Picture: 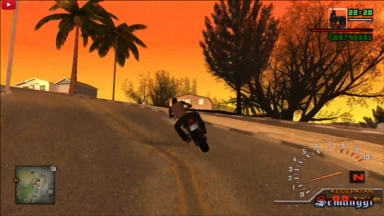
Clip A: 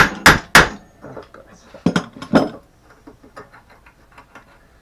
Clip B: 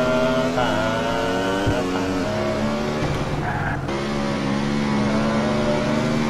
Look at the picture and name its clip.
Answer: B